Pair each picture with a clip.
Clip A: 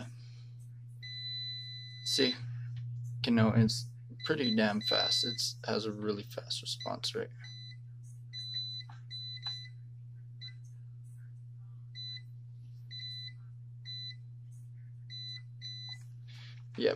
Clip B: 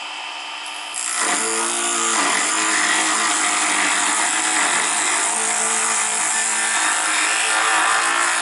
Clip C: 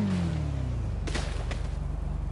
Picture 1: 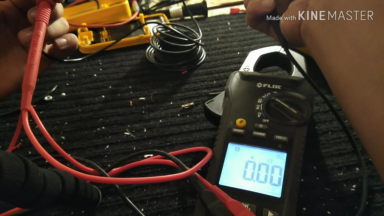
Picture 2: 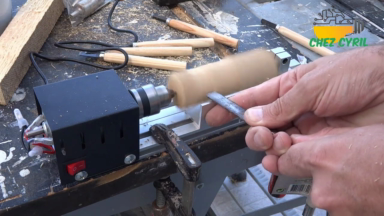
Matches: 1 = A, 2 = B